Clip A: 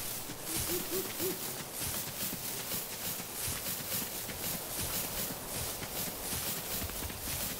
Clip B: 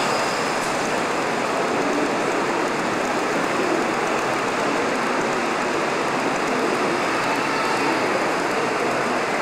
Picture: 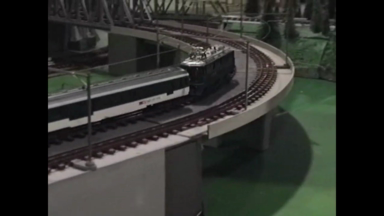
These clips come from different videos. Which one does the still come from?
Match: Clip B